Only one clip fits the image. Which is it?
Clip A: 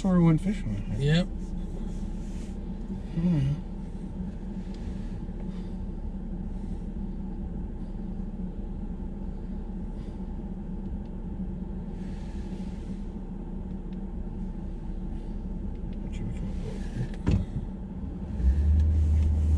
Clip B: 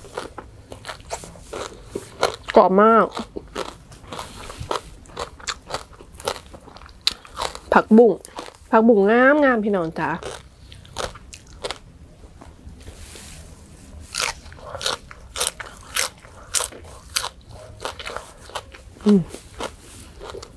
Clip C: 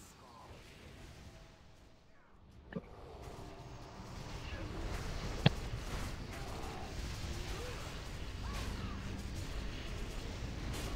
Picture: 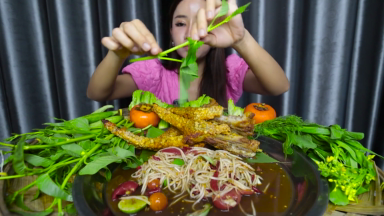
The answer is B